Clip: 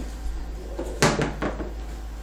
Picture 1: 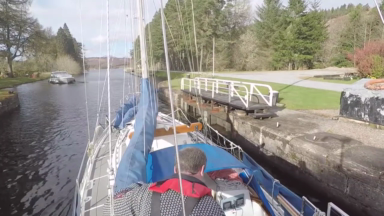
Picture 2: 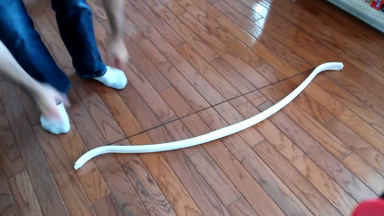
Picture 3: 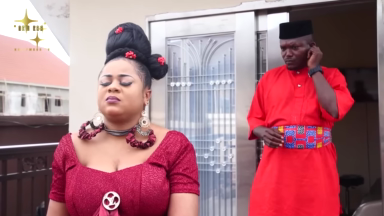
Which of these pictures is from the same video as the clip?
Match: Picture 2